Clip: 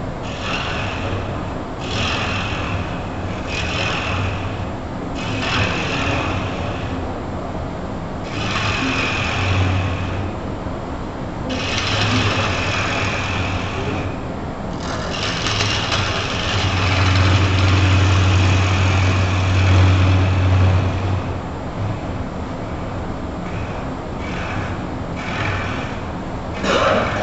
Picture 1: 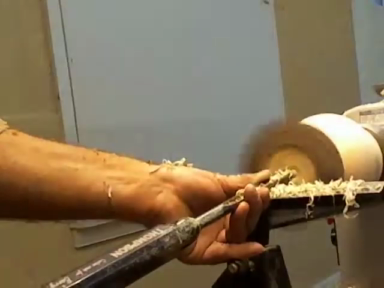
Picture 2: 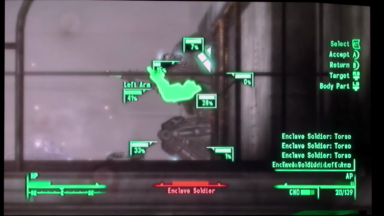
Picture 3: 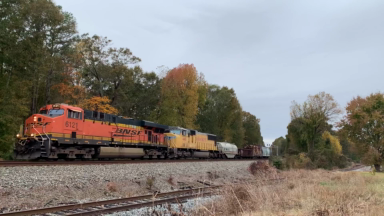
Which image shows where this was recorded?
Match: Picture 1